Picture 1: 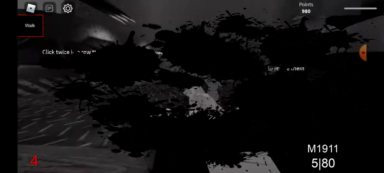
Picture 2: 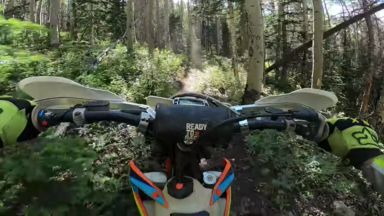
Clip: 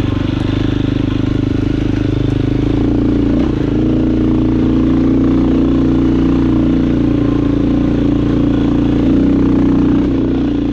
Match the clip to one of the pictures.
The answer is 2